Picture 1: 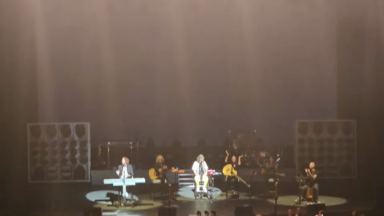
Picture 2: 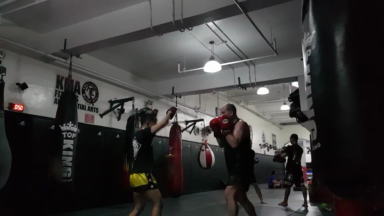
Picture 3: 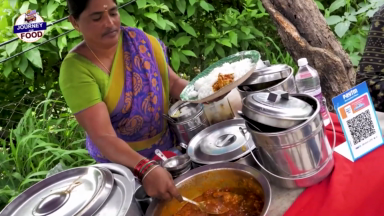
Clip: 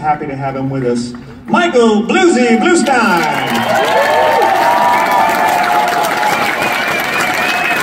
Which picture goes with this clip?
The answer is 1